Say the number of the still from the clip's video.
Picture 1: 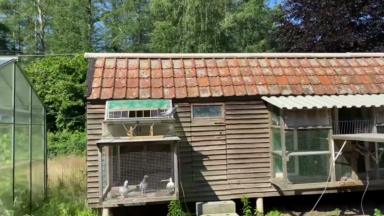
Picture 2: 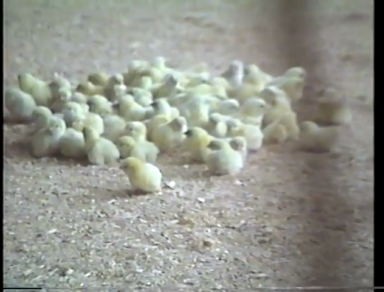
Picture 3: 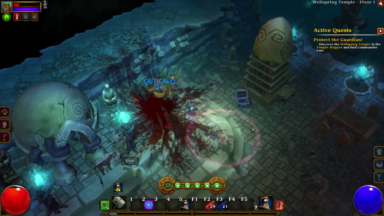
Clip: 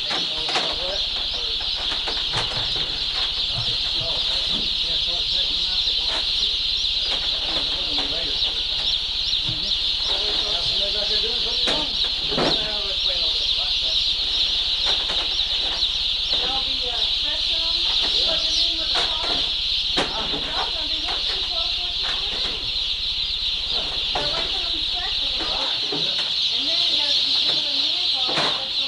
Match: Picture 2